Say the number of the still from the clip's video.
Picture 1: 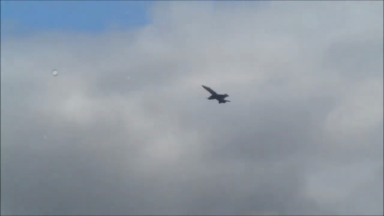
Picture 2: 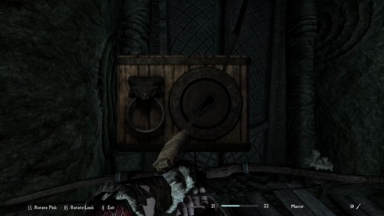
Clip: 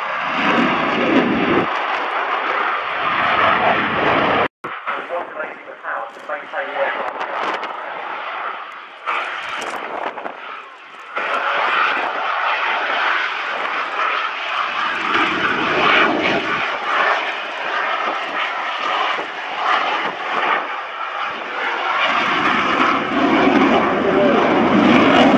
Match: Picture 1